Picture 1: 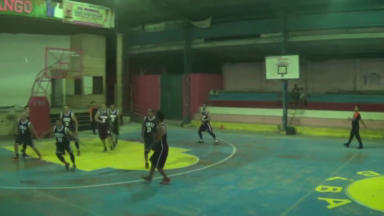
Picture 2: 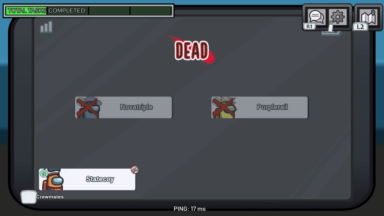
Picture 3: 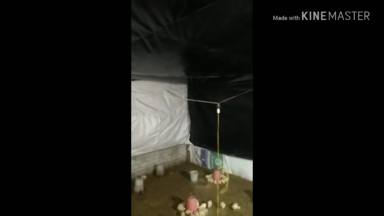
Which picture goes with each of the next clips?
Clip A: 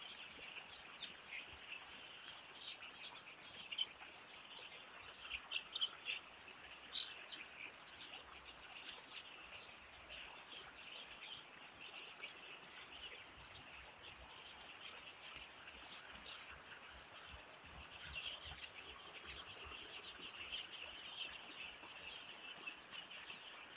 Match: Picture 3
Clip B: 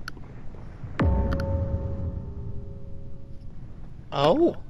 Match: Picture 2